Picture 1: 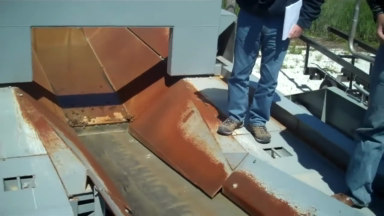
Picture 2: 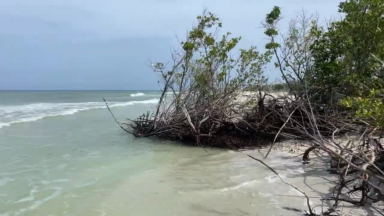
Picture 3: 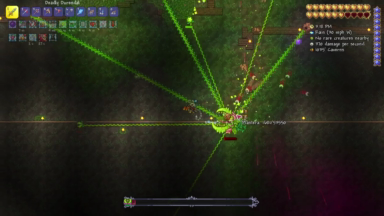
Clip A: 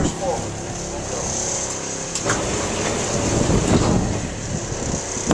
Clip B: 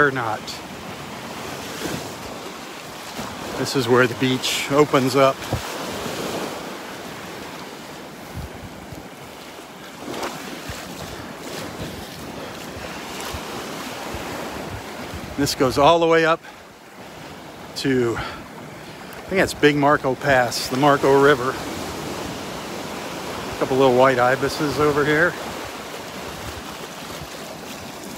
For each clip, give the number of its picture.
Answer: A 1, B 2